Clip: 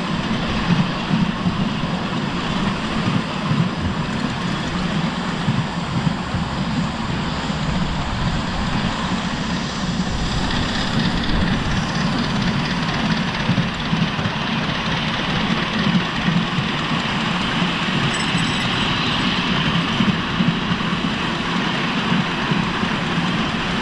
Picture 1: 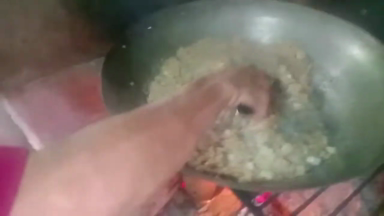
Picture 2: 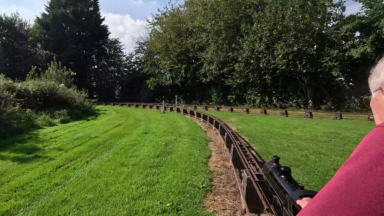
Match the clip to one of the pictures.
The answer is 2